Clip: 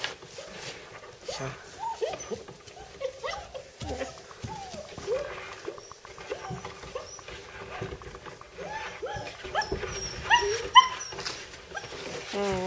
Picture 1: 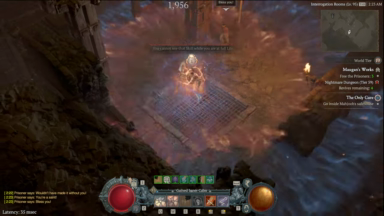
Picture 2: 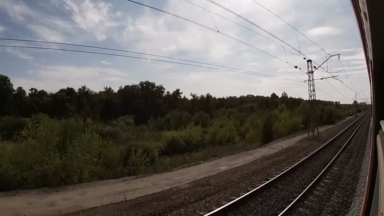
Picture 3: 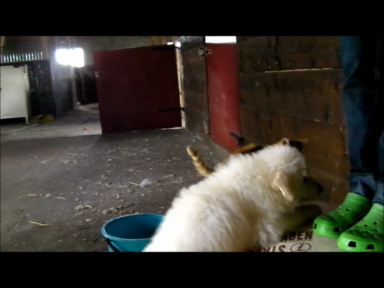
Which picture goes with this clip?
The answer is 3